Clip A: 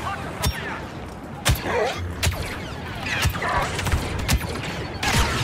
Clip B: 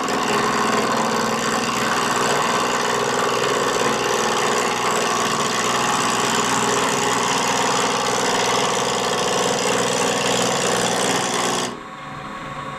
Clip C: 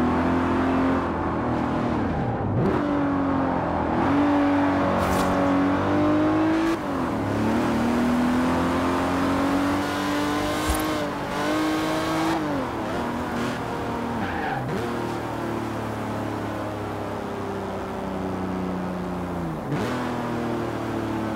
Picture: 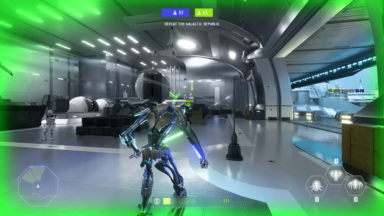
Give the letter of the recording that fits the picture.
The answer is A